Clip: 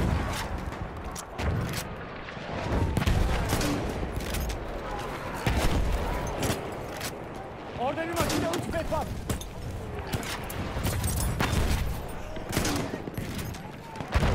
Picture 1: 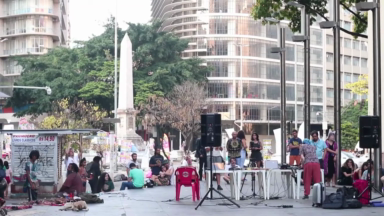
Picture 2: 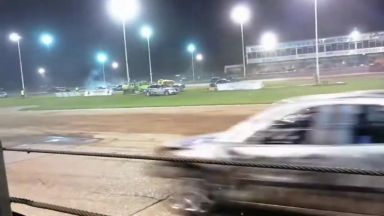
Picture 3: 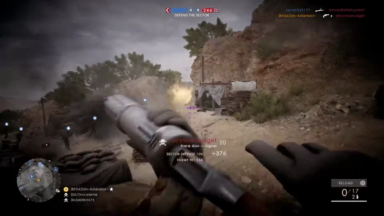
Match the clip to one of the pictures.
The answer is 3